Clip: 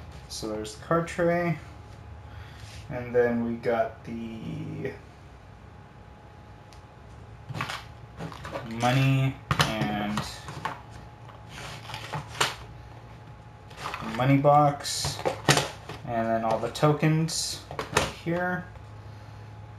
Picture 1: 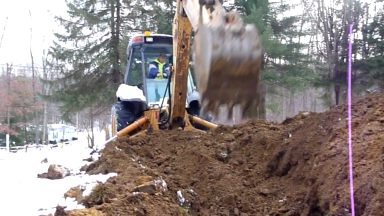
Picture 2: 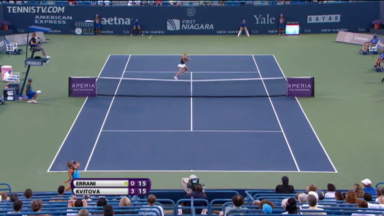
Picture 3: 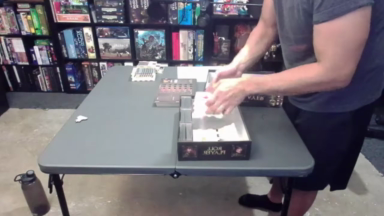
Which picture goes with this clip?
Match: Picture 3